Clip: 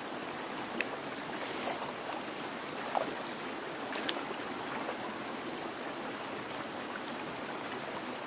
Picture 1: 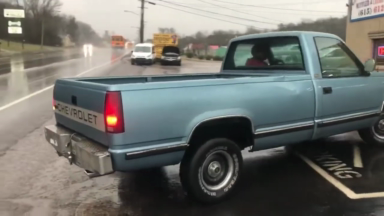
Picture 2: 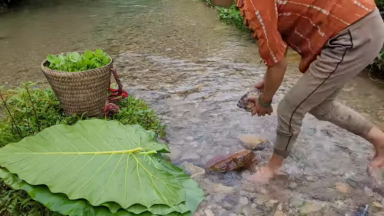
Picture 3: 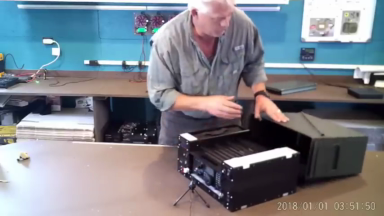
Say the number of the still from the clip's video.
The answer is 2